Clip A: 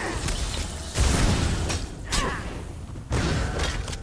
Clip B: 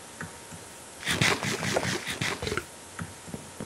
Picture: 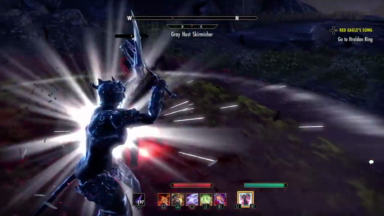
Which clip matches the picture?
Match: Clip A